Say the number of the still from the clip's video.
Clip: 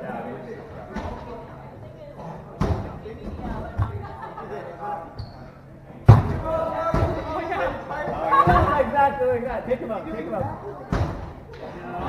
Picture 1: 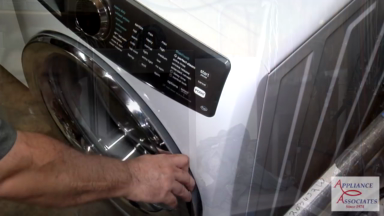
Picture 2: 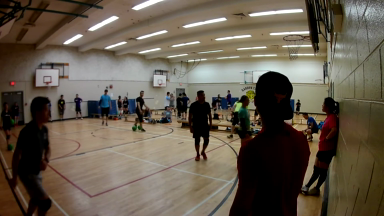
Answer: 2